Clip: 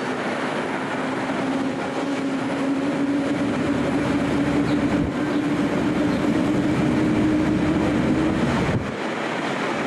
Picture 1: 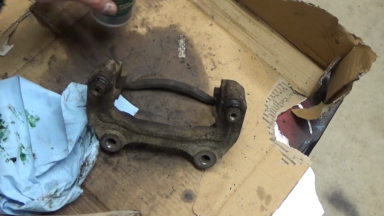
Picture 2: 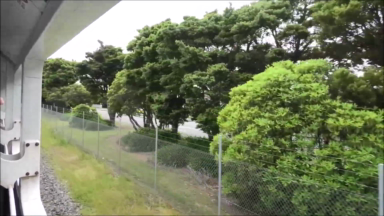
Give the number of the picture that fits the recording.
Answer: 2